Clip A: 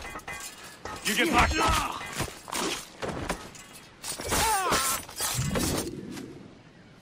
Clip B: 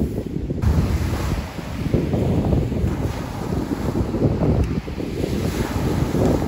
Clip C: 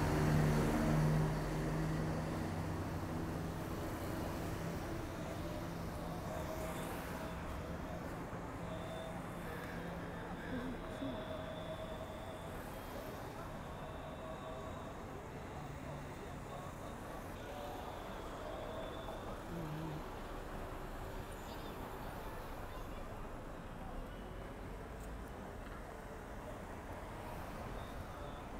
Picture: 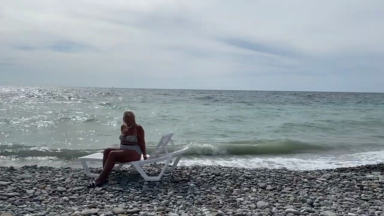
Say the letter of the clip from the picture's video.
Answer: B